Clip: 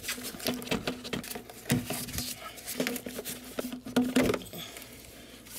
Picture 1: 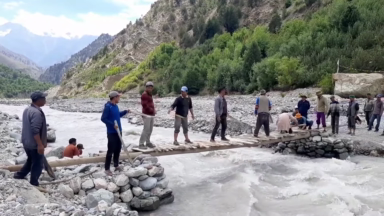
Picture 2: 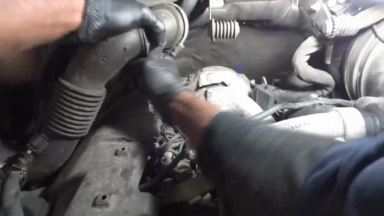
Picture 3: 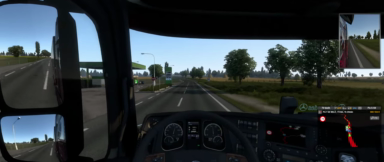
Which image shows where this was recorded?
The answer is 2